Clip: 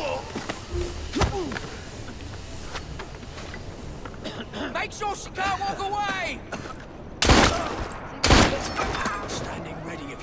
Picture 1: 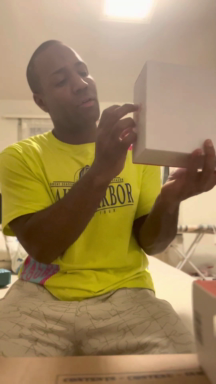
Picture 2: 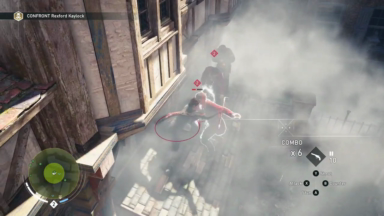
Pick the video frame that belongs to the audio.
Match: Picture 2